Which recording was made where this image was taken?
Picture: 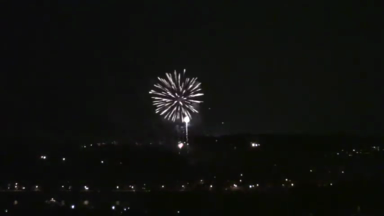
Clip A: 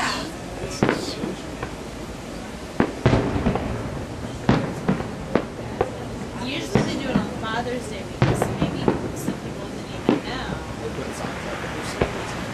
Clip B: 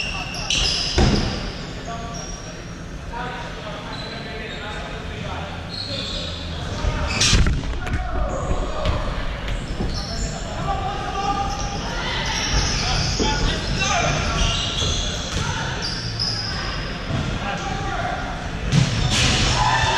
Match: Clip A